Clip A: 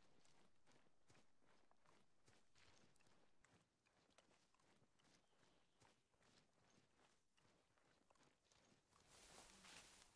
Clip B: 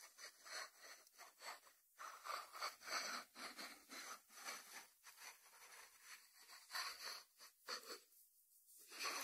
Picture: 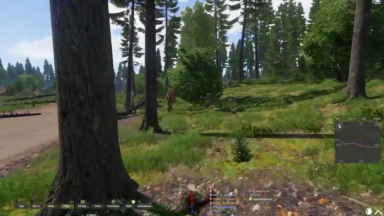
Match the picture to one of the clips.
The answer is A